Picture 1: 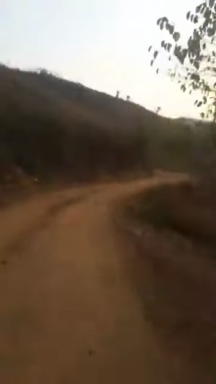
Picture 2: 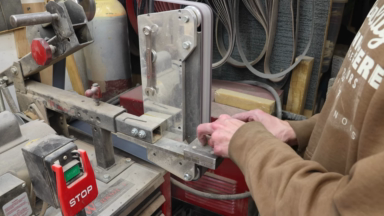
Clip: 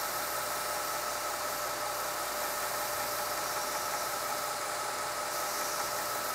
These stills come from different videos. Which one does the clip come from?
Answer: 2